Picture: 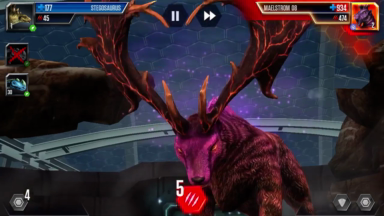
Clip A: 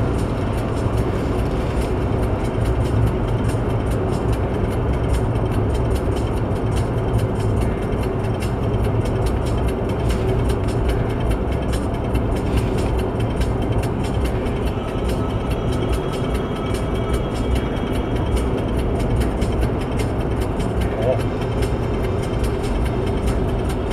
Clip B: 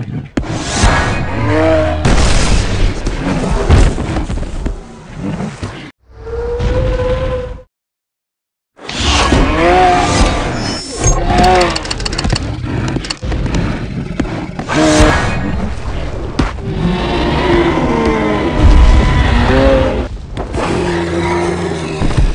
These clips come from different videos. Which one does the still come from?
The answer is B